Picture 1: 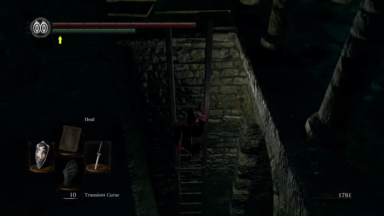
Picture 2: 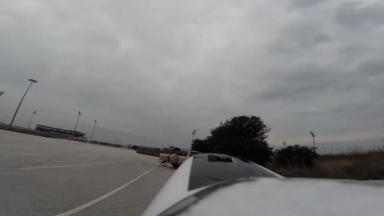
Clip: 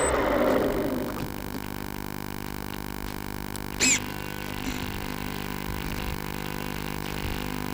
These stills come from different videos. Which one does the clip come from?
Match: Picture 2